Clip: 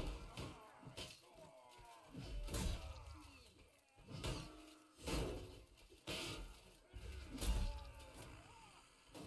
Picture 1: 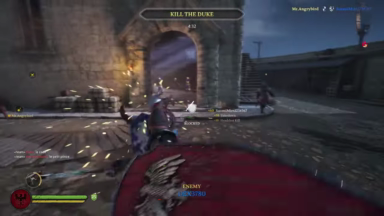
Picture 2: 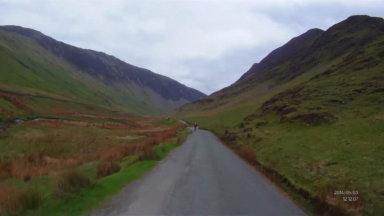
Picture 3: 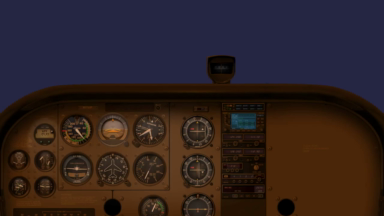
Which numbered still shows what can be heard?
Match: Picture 1